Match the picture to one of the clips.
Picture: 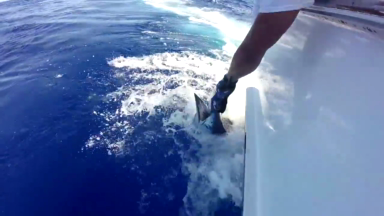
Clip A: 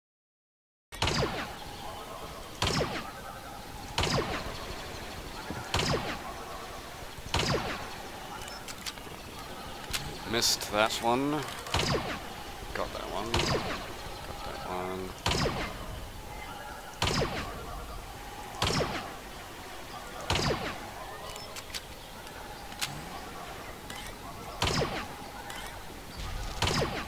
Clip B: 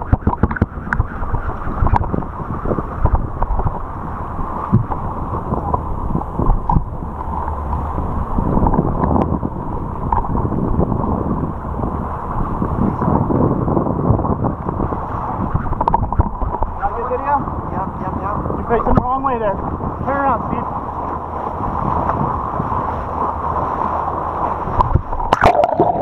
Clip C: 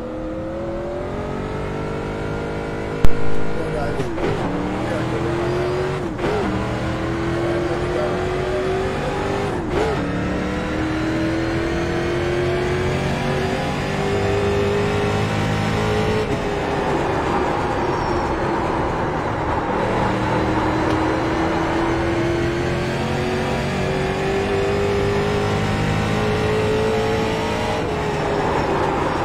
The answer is B